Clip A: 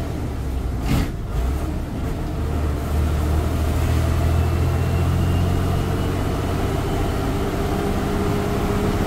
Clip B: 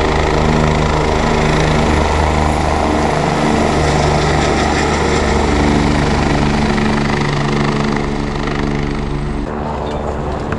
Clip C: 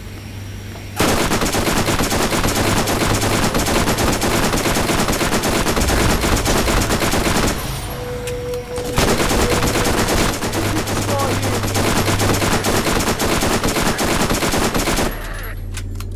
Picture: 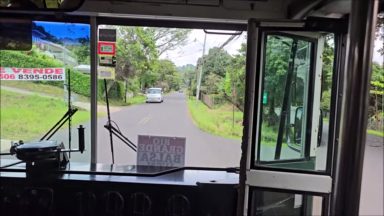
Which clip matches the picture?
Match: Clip A